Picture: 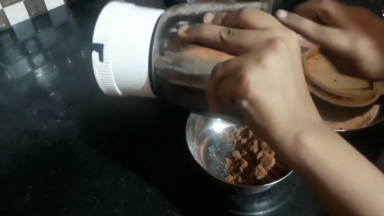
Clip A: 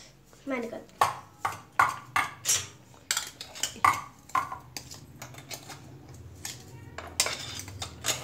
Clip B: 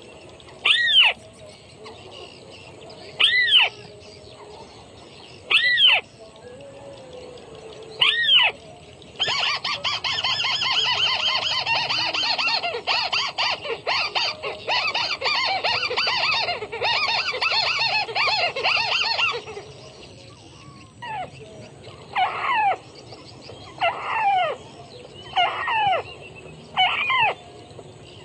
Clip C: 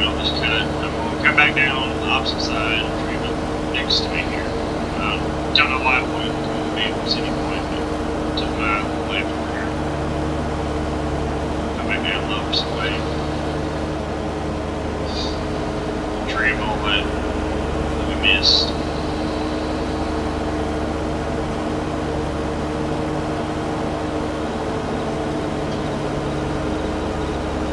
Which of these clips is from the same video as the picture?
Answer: A